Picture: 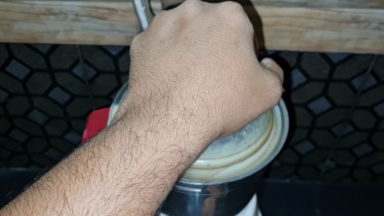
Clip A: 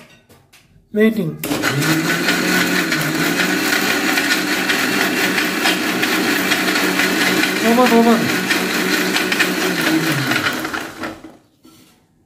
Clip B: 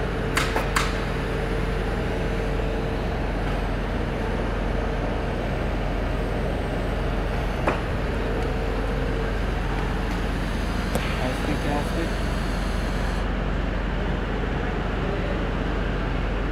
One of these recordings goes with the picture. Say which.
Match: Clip A